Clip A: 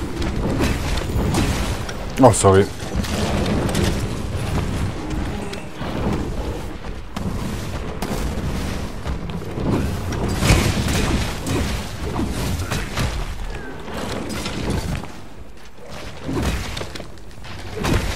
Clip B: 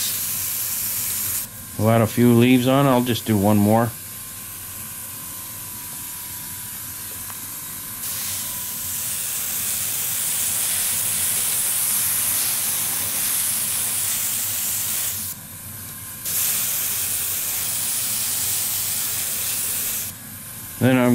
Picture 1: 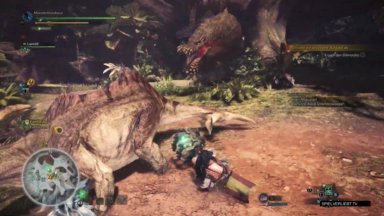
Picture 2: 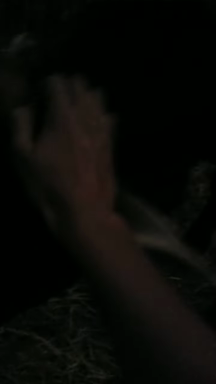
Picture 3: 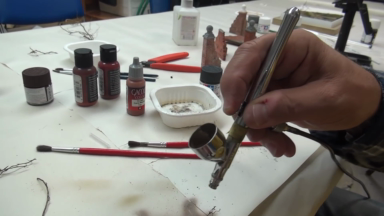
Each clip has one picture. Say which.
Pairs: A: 1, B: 3